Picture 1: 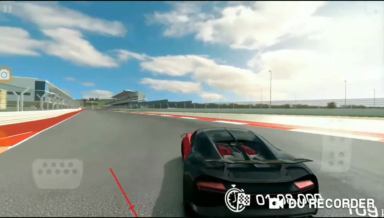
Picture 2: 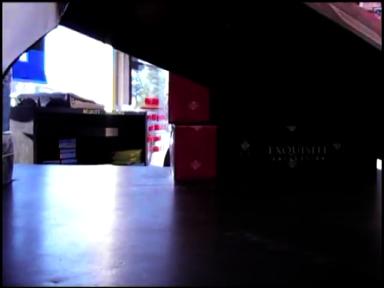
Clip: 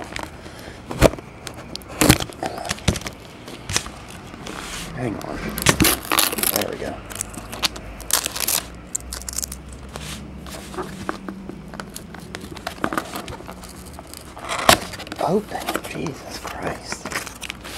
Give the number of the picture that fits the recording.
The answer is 2